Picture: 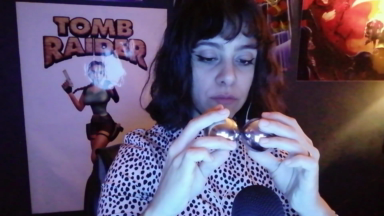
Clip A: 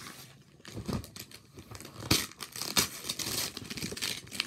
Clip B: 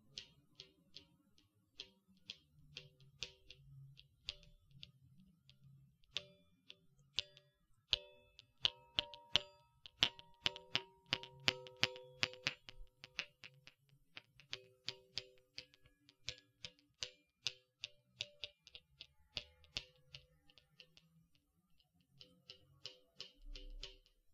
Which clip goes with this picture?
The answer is B